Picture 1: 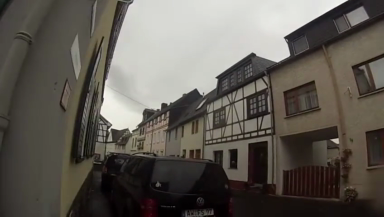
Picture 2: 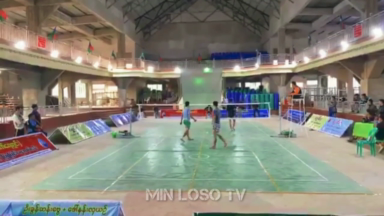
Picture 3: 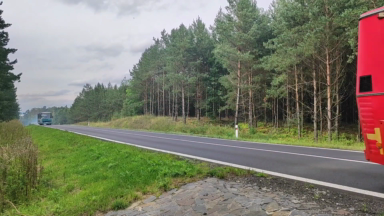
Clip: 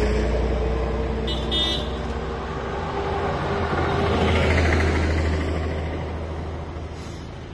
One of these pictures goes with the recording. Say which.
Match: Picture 3